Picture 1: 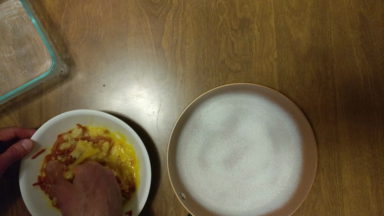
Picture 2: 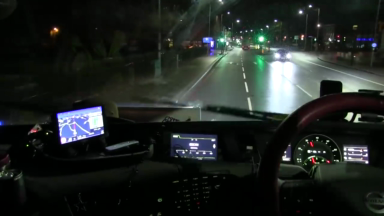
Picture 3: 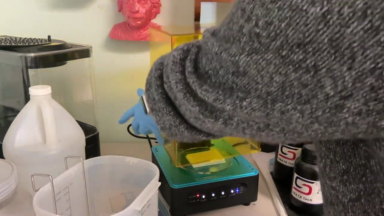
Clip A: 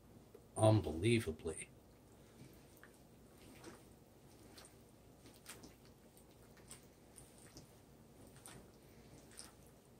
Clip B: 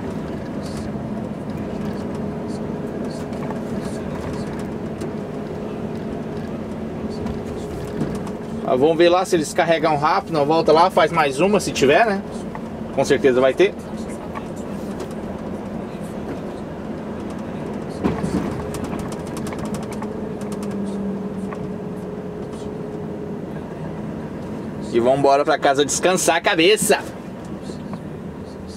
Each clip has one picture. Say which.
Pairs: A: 1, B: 2